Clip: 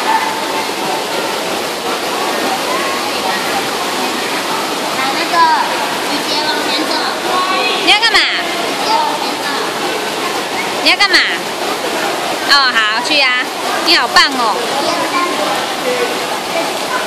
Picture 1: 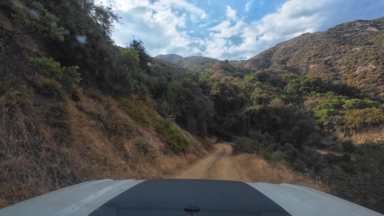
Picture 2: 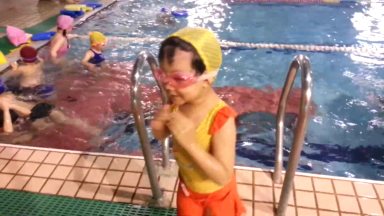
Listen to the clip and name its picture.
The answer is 2